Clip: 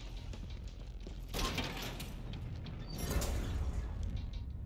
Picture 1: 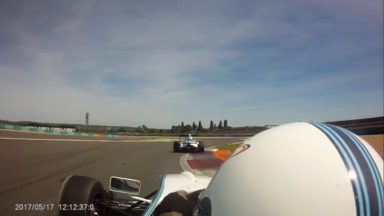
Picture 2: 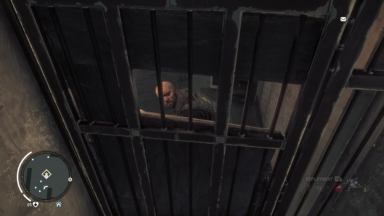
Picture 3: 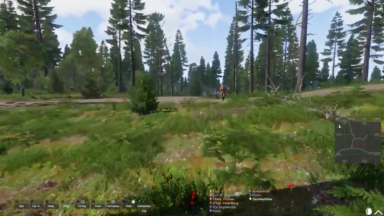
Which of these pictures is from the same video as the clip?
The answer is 2